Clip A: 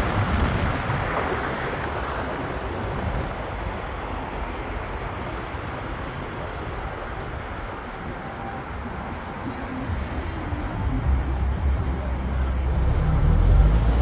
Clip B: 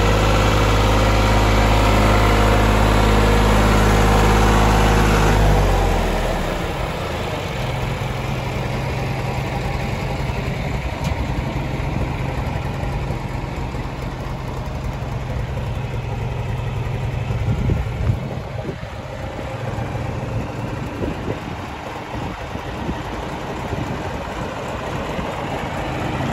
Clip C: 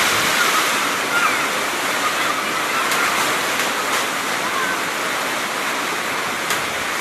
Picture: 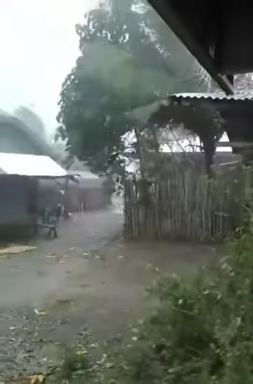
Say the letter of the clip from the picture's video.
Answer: C